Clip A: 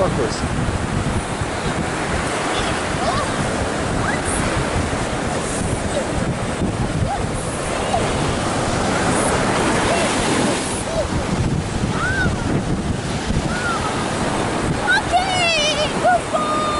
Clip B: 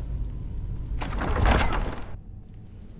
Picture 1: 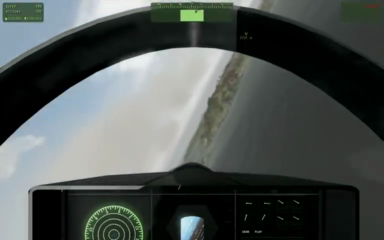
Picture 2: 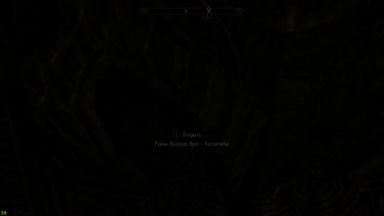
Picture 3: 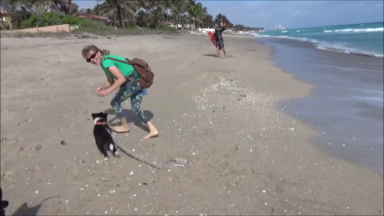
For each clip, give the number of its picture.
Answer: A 3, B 2